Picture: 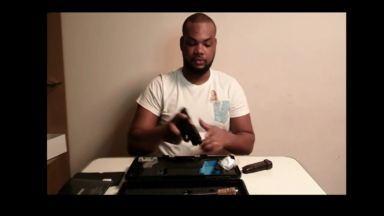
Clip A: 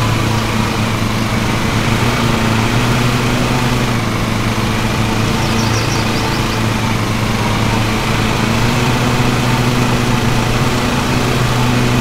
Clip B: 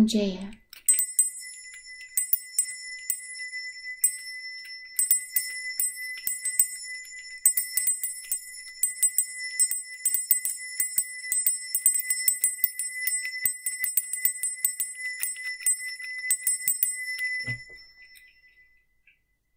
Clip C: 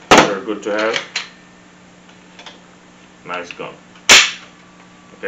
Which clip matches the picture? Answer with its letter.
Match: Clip C